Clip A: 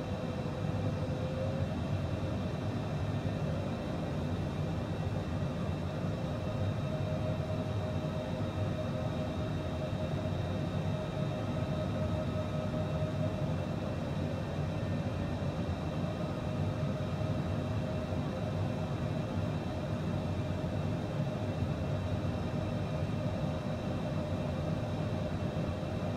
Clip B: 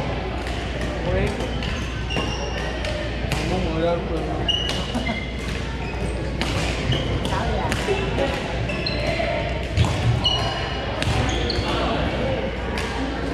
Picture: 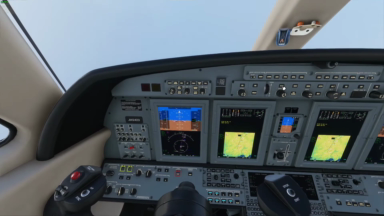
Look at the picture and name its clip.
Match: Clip A